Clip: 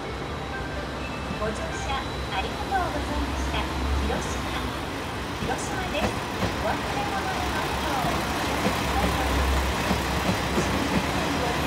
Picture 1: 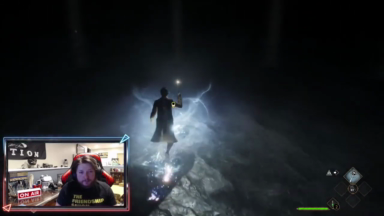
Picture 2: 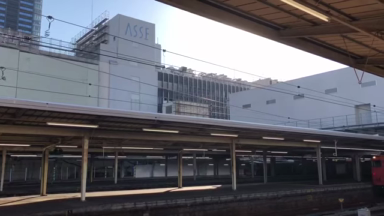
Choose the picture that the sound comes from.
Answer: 2